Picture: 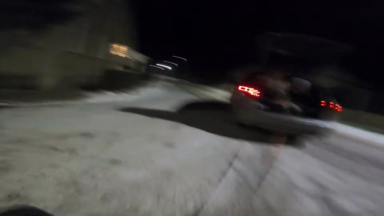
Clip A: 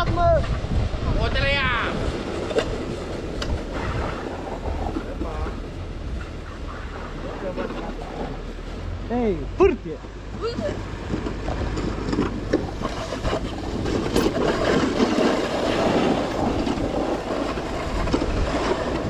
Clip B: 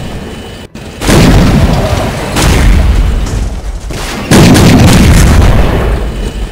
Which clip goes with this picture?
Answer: A